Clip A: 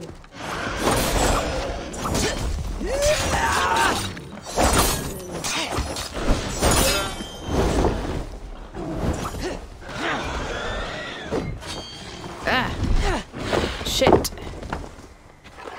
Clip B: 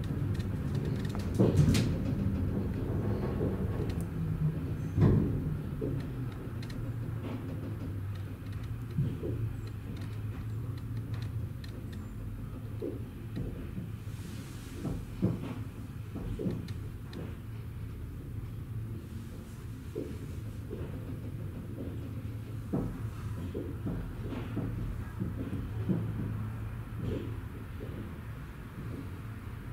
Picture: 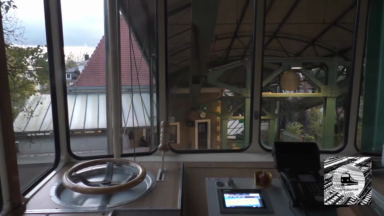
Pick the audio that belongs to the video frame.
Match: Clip B